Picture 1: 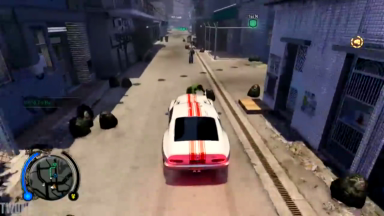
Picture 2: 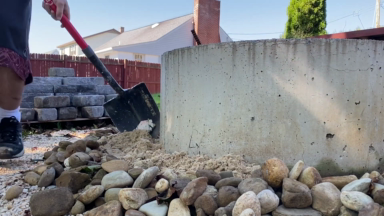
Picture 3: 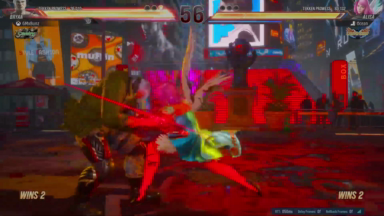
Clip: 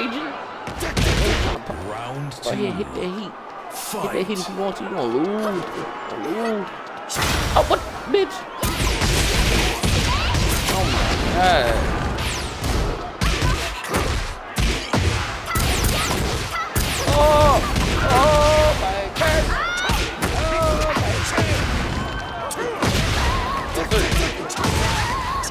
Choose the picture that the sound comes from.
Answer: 3